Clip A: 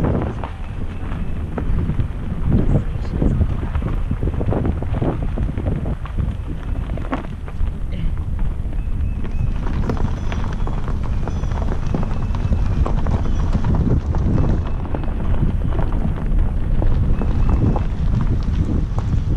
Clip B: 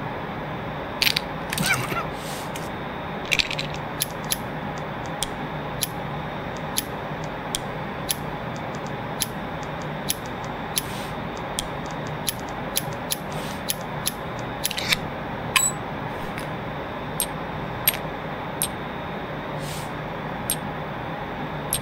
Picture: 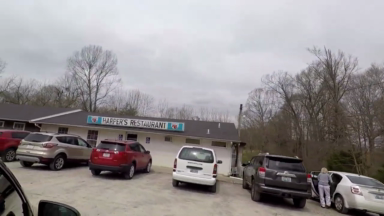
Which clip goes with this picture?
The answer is A